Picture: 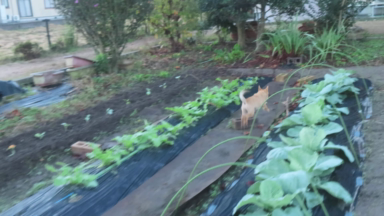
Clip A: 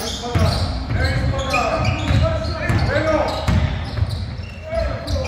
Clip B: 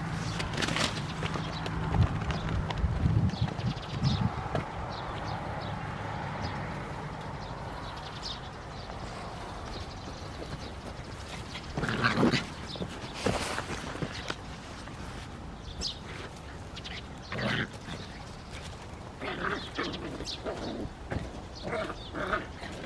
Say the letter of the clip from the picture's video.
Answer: B